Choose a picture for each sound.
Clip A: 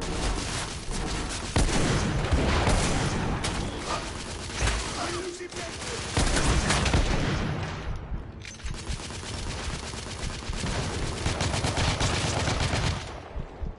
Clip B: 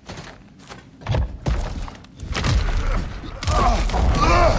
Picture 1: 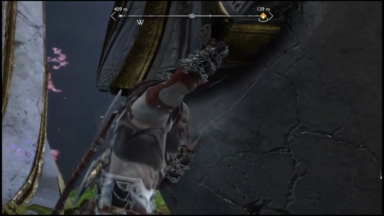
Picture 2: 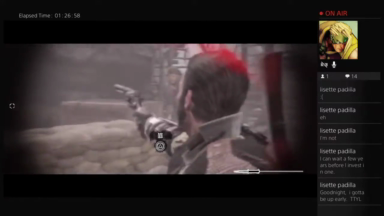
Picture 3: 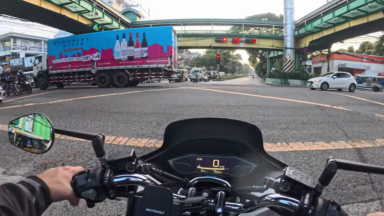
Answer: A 2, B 1